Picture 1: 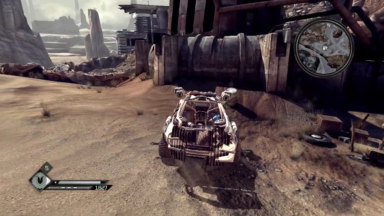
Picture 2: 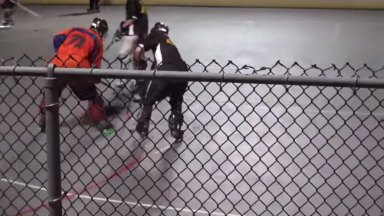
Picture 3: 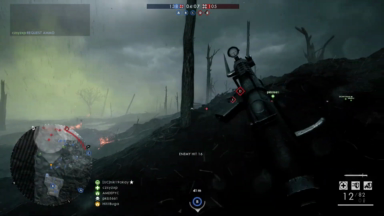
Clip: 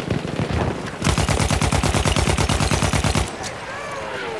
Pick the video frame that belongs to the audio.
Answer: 3